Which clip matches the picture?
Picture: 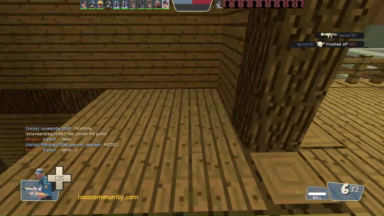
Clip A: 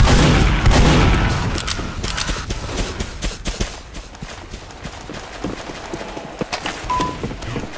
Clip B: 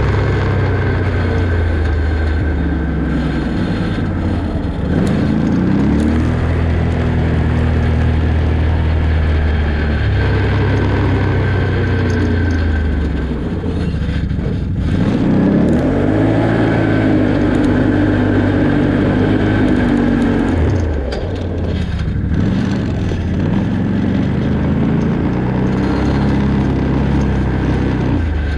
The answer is A